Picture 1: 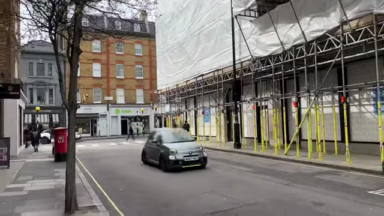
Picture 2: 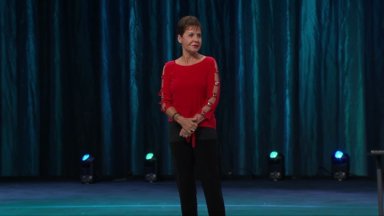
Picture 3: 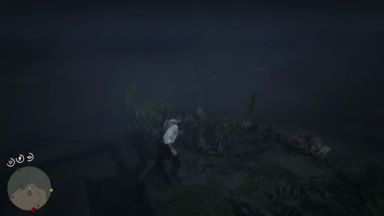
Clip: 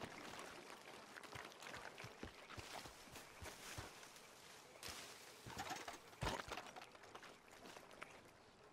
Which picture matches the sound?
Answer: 3